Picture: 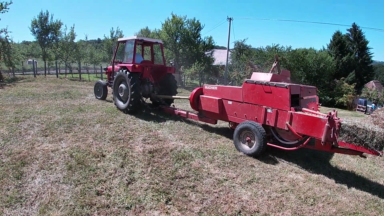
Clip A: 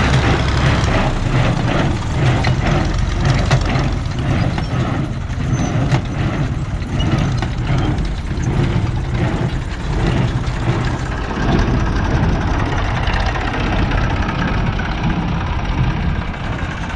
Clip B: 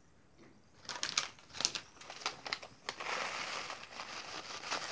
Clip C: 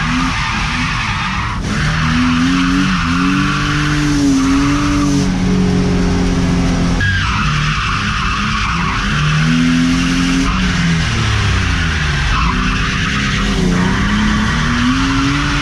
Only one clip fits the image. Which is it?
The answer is A